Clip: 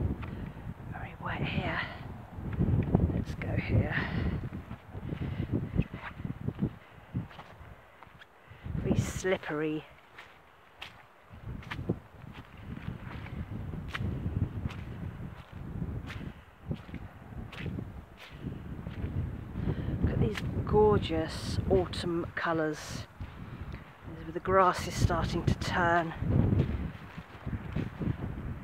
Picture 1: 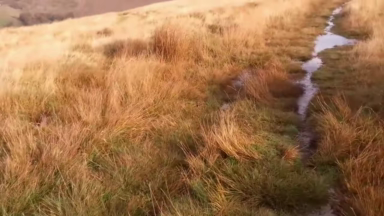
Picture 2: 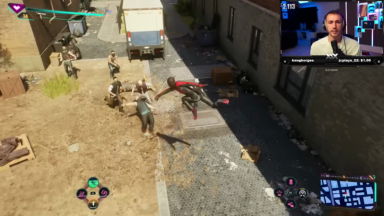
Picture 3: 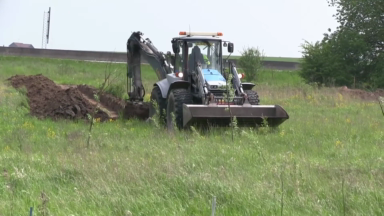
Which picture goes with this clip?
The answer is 1